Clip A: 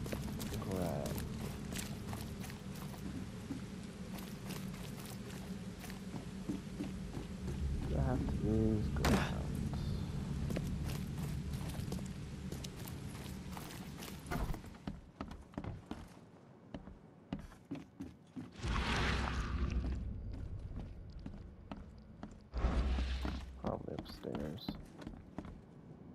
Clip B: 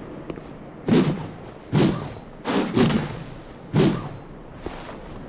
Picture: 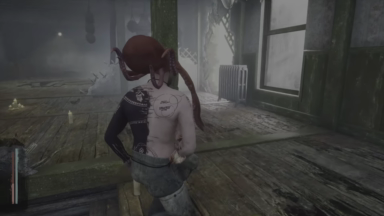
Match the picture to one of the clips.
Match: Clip A